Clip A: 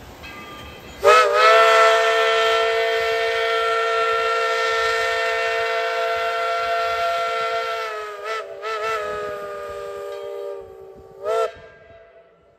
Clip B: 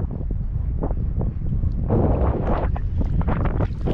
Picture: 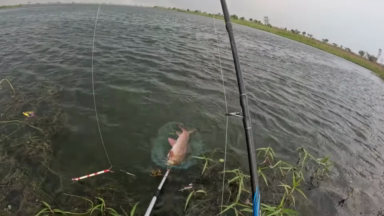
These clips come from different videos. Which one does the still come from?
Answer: B